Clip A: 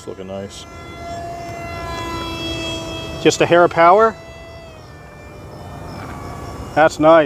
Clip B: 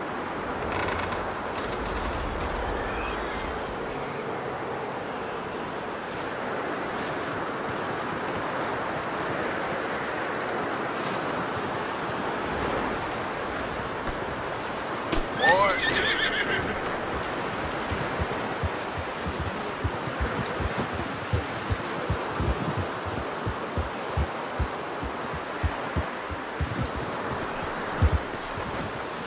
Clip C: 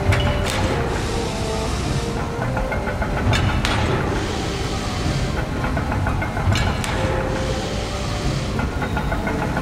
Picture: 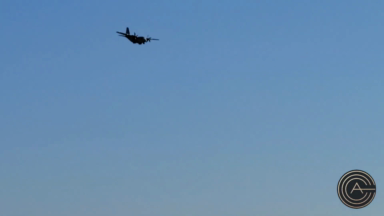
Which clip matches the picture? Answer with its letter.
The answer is A